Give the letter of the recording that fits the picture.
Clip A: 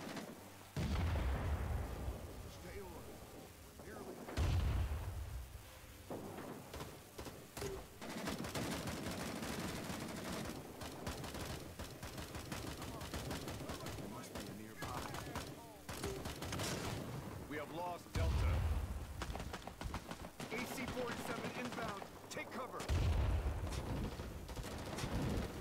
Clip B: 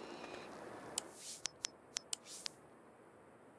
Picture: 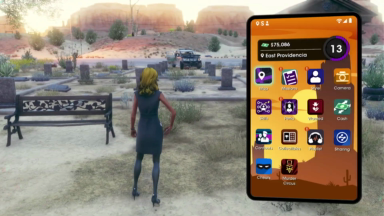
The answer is B